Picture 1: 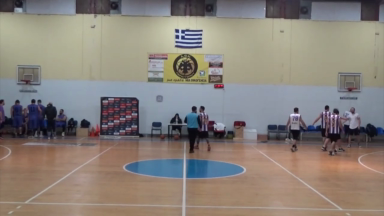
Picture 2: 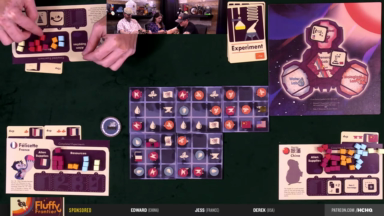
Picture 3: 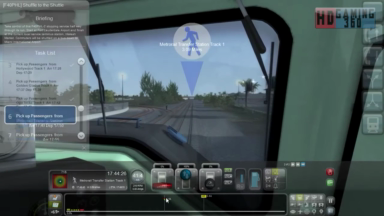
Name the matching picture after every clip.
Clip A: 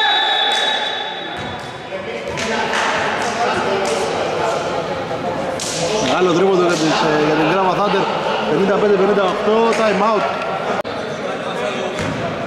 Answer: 1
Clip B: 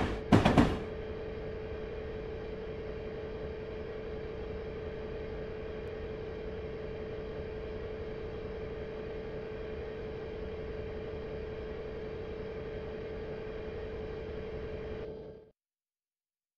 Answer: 3